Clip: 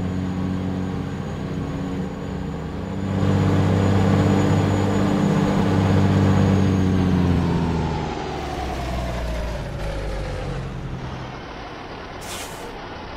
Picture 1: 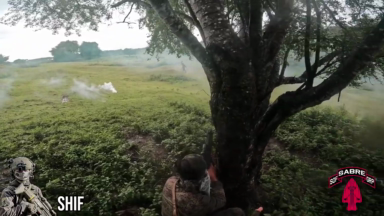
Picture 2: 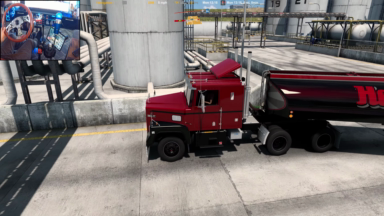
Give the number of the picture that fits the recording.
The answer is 2